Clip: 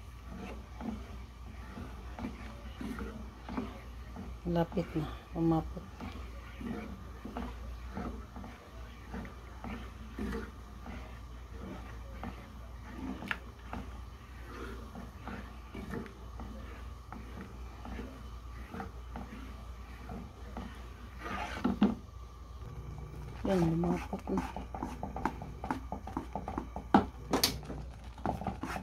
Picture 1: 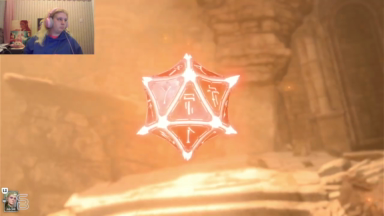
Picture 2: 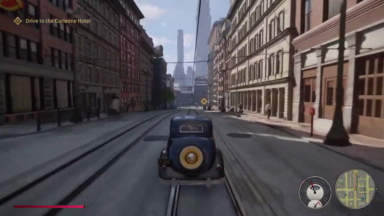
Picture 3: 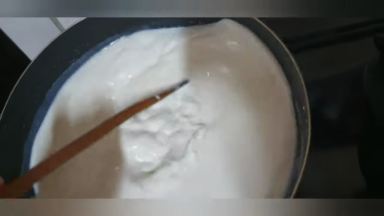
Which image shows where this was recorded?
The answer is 3